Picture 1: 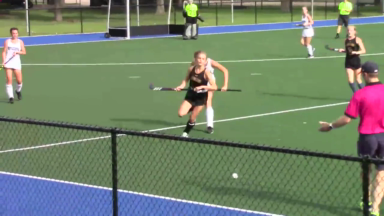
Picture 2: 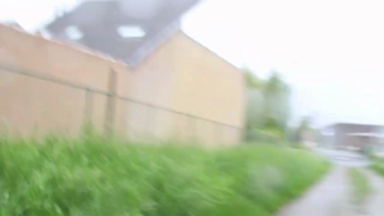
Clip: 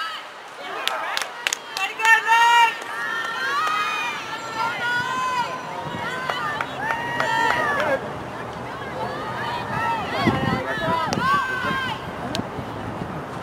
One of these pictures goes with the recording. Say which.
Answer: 1